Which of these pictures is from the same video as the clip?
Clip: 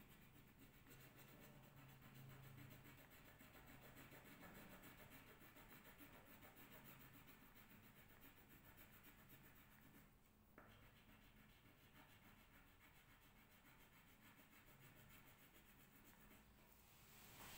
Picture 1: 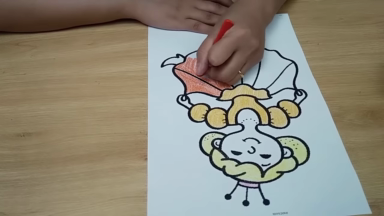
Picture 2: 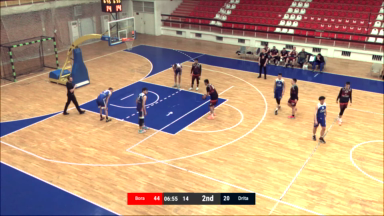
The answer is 1